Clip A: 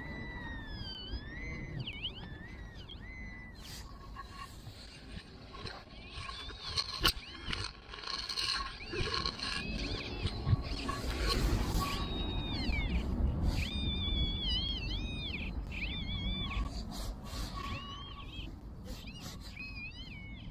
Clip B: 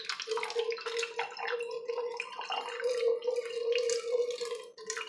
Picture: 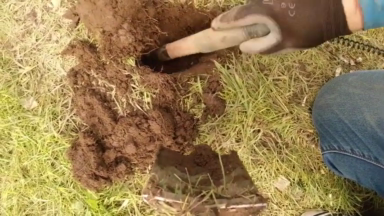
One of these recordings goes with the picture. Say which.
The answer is A